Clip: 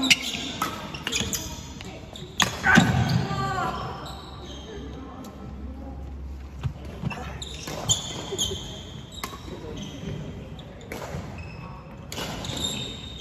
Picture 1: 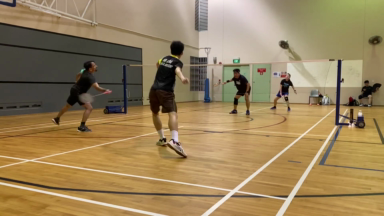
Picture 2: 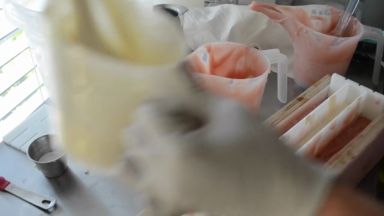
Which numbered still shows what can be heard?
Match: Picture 1